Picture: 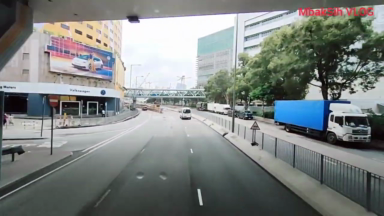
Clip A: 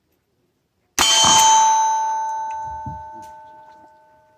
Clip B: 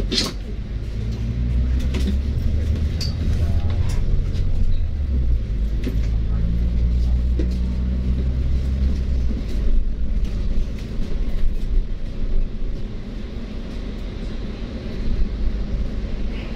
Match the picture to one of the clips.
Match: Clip B